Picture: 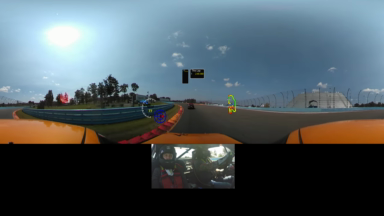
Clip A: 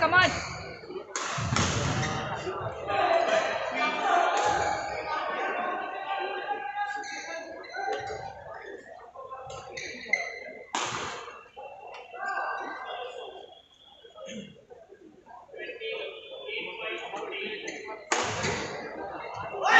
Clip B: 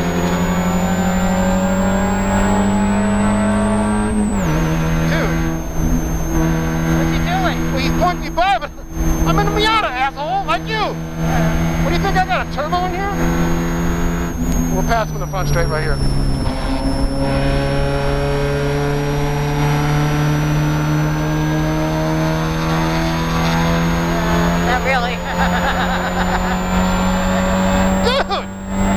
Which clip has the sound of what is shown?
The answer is B